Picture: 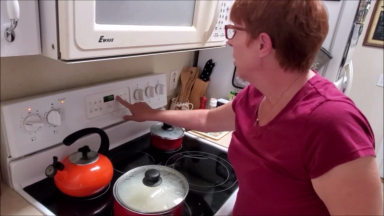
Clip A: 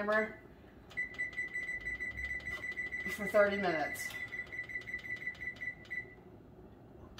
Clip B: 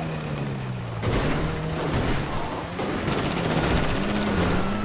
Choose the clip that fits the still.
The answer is A